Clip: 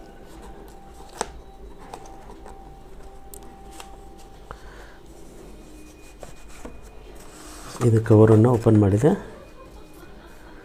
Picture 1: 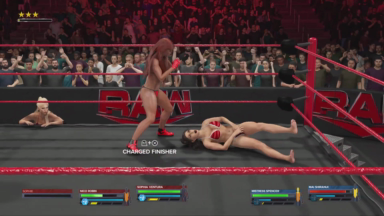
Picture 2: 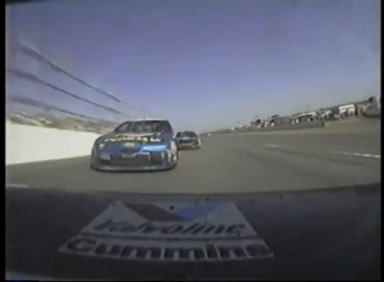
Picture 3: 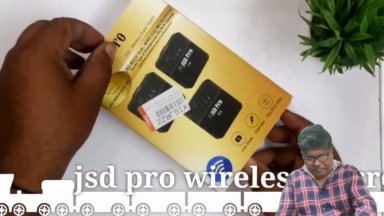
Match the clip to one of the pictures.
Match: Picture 3